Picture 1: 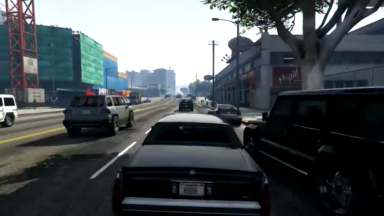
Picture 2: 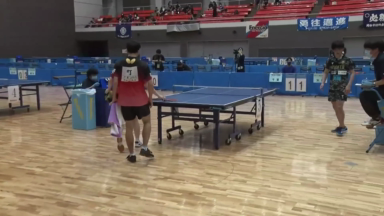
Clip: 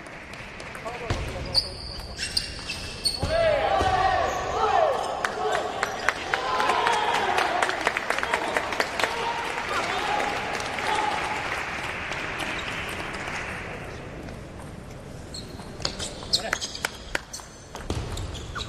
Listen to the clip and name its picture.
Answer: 2